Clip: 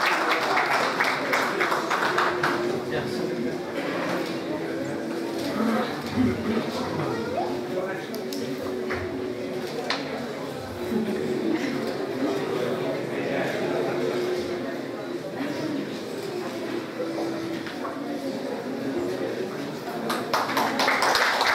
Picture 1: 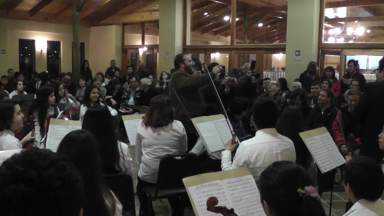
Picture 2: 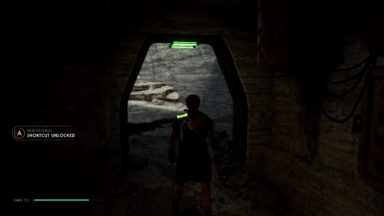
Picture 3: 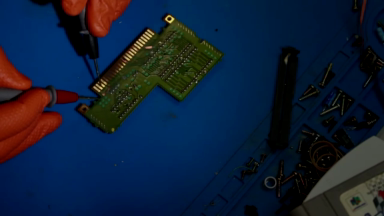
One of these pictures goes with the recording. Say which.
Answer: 1